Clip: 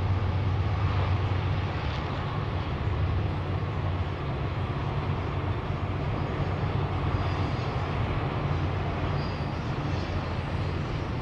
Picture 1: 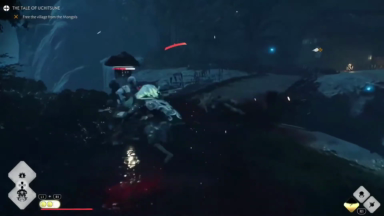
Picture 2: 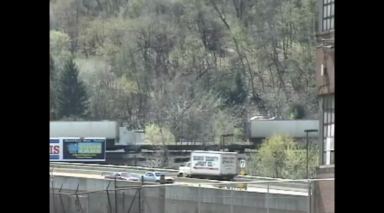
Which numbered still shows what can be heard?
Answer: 2